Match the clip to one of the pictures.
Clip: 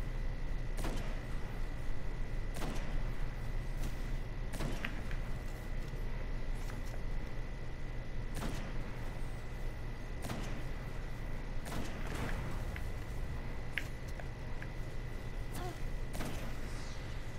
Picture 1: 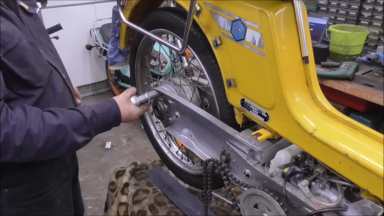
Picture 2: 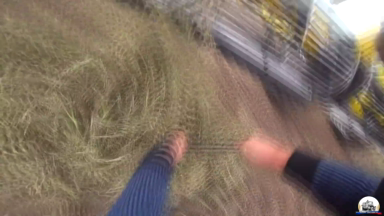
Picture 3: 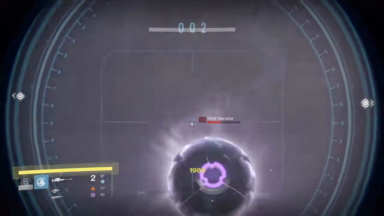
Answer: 3